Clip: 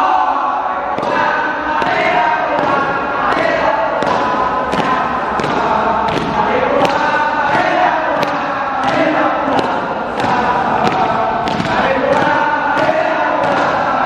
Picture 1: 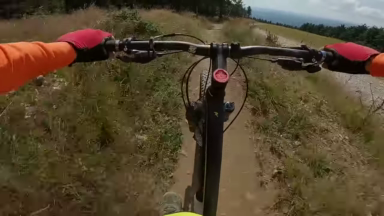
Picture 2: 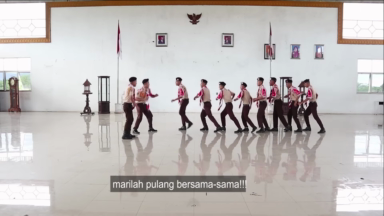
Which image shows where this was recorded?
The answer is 2